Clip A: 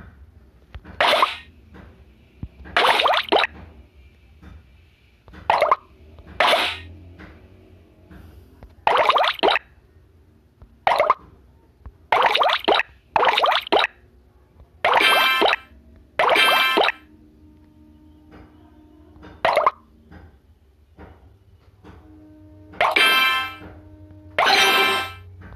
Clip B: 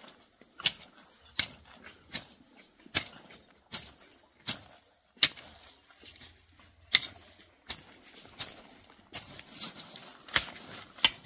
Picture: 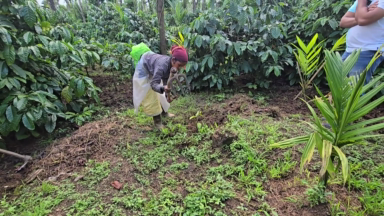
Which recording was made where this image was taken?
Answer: B